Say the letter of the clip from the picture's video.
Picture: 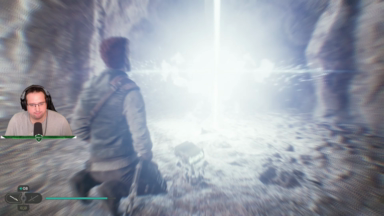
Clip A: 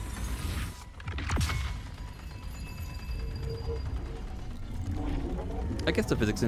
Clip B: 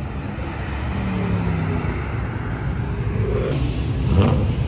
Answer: A